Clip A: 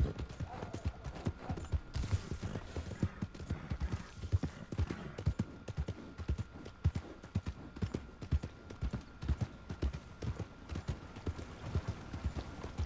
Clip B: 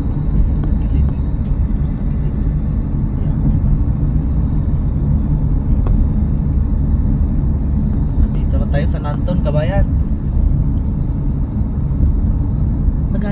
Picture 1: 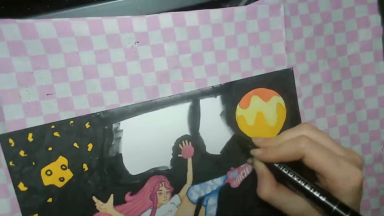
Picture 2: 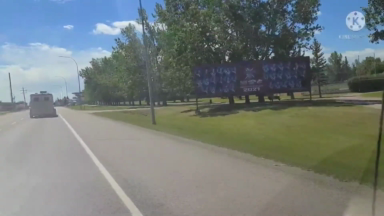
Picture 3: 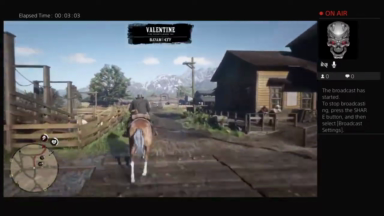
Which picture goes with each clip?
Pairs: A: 3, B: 2